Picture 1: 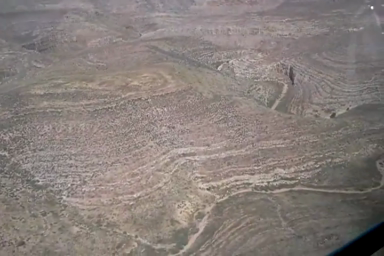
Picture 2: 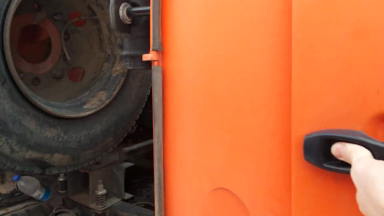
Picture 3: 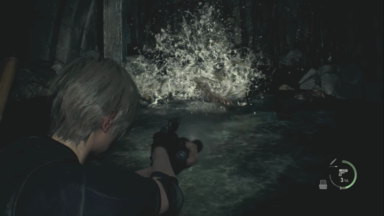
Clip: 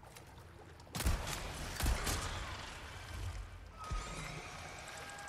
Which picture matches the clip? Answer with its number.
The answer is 3